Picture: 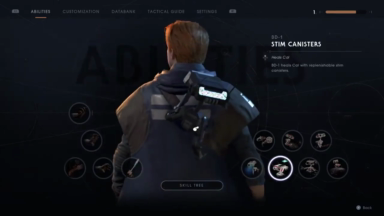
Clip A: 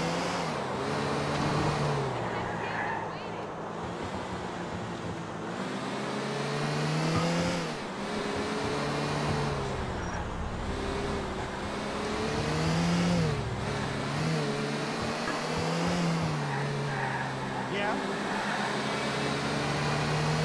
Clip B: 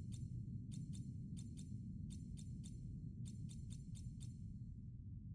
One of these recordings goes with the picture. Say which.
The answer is B